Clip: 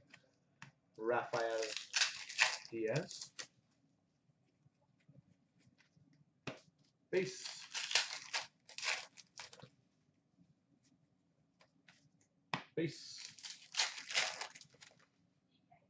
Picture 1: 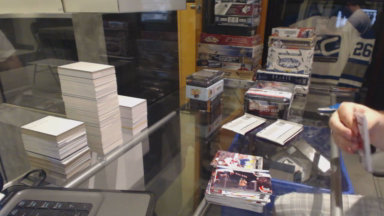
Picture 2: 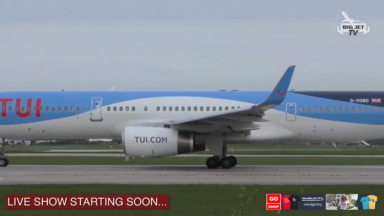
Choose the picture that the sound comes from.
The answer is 1